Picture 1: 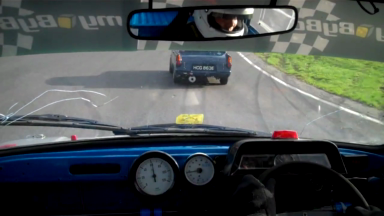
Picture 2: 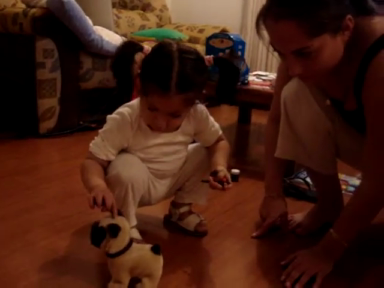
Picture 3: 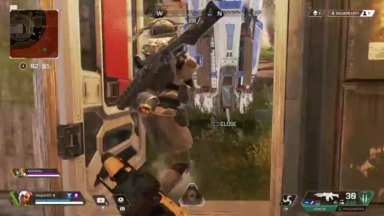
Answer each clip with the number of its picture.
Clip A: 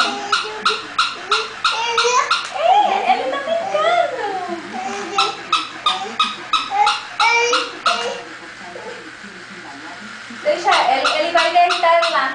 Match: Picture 2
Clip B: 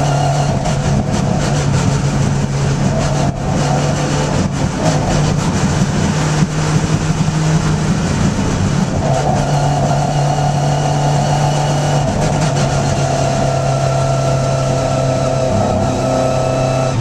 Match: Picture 1